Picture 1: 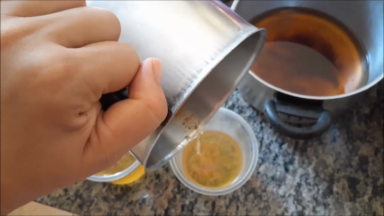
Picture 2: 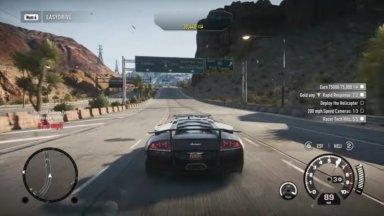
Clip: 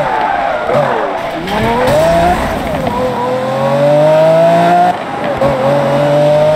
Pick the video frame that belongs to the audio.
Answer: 2